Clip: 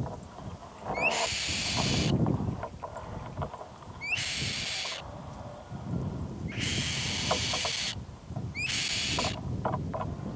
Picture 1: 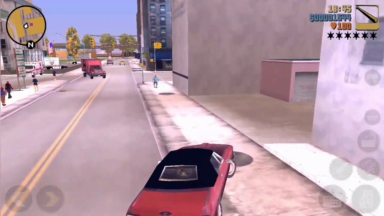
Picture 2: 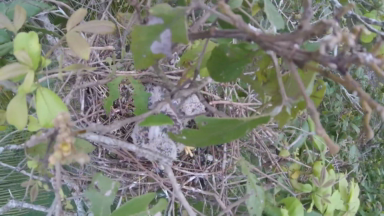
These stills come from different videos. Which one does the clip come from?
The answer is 2